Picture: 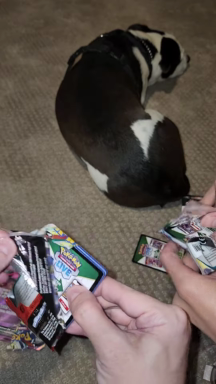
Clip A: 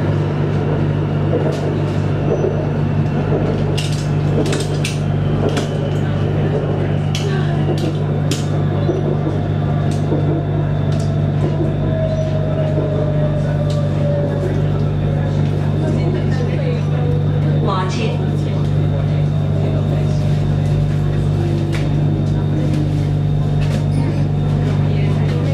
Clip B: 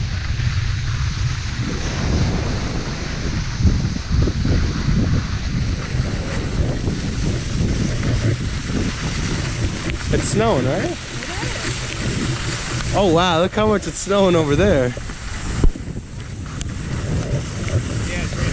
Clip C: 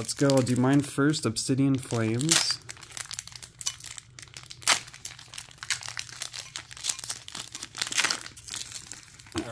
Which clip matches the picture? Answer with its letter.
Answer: C